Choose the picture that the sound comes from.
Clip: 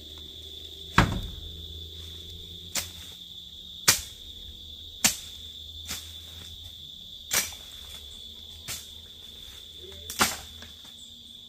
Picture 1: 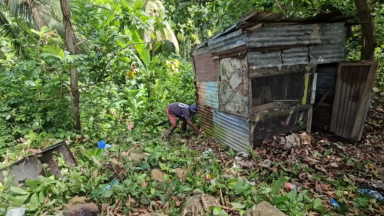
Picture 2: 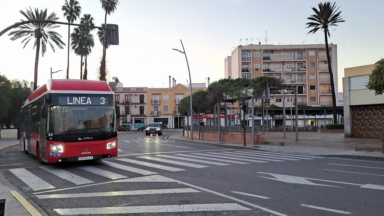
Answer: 1